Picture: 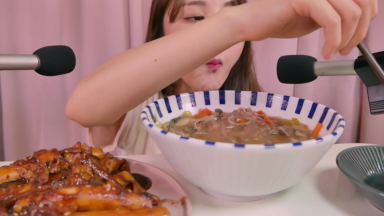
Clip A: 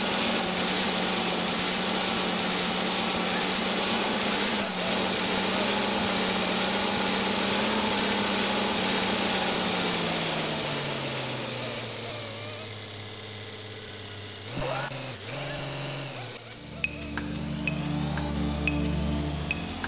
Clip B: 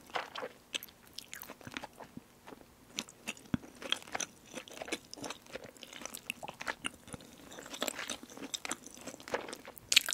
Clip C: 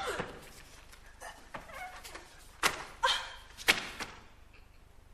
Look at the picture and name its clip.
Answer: B